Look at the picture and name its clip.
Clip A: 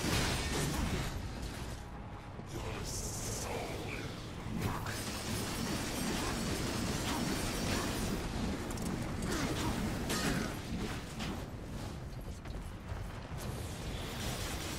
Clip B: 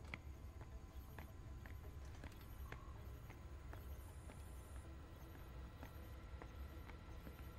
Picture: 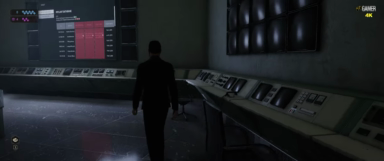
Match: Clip B